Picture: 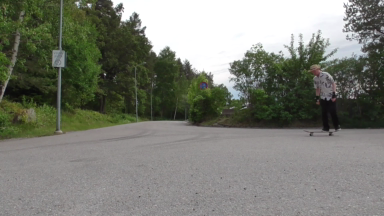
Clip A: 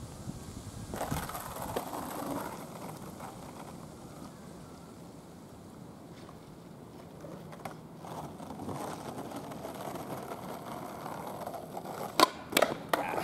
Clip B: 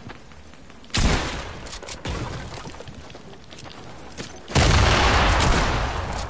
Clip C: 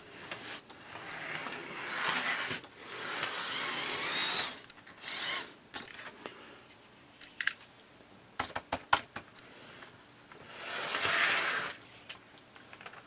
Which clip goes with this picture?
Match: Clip A